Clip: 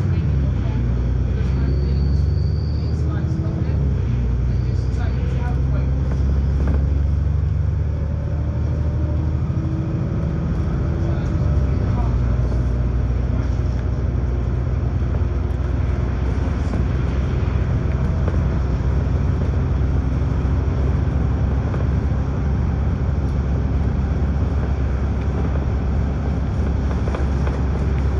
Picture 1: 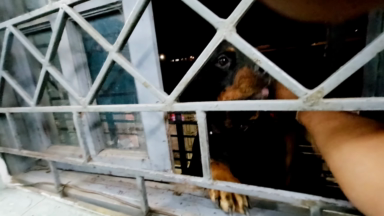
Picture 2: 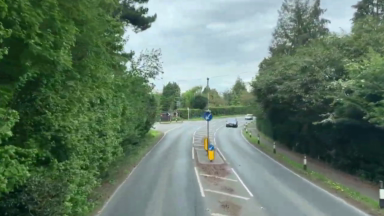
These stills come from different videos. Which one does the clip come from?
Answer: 2